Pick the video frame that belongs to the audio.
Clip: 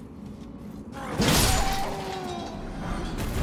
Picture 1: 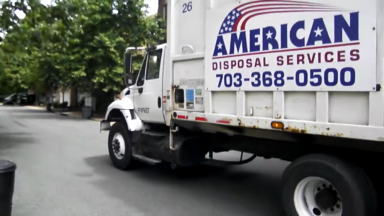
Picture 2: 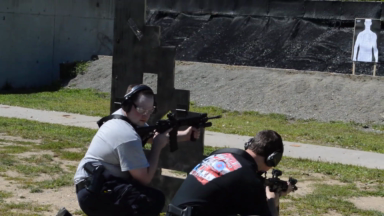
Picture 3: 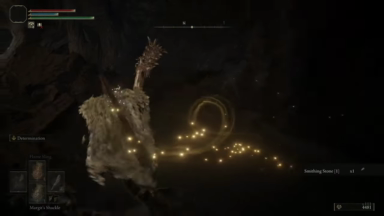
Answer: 3